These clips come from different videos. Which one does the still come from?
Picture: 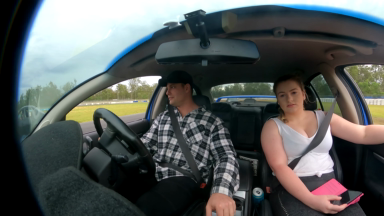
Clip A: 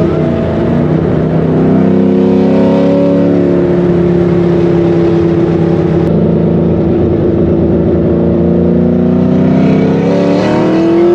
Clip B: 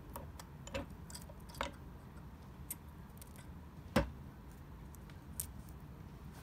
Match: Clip A